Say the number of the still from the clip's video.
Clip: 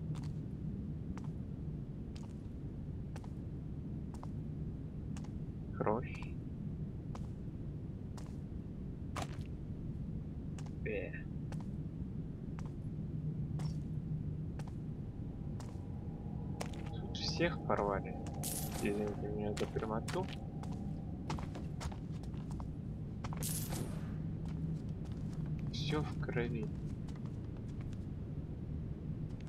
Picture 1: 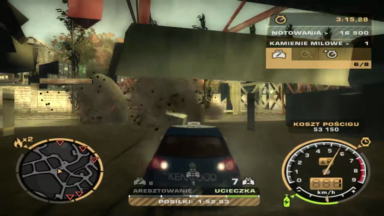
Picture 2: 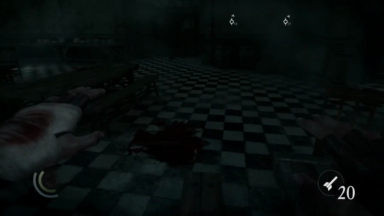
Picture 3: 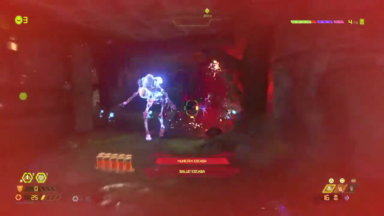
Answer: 2